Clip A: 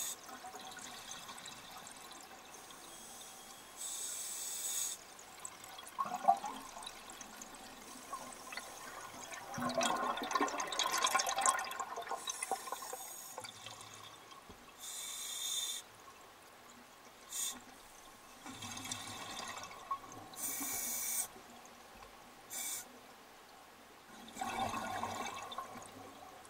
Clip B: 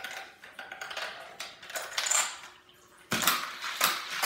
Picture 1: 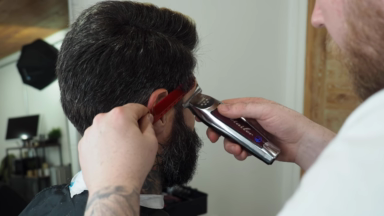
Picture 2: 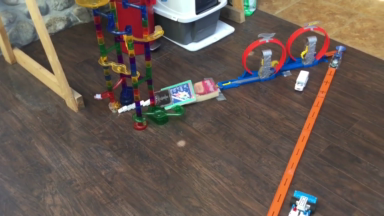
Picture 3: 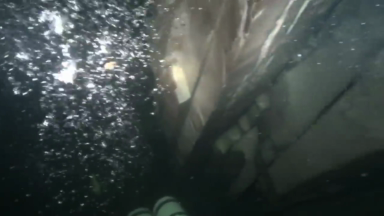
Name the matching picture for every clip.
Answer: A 3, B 2